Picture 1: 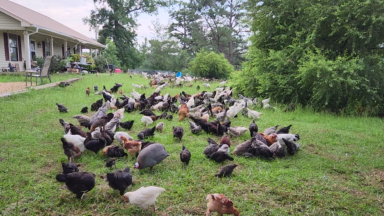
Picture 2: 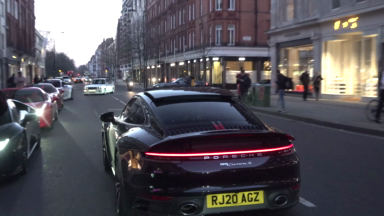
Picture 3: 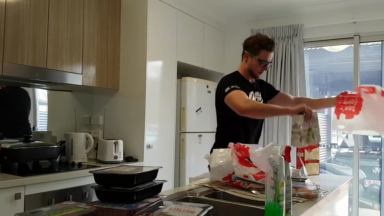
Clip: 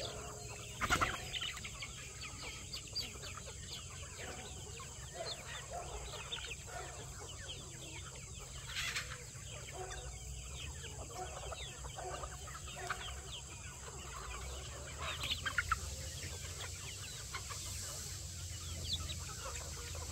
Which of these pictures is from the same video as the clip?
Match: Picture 1